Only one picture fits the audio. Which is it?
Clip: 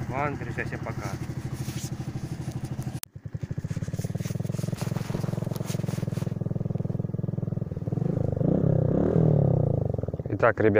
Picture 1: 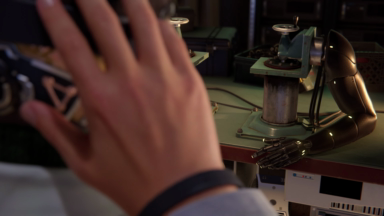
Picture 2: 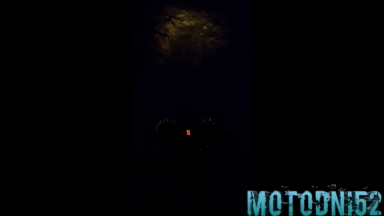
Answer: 2